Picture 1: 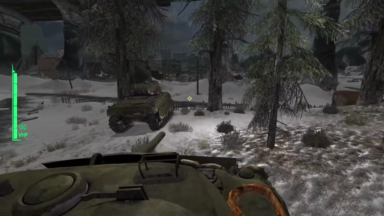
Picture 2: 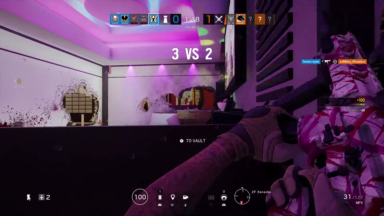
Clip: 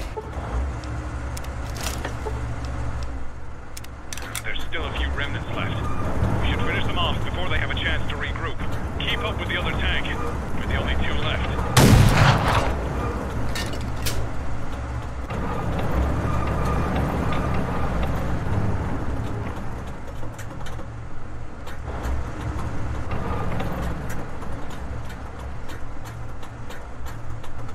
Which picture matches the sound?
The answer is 1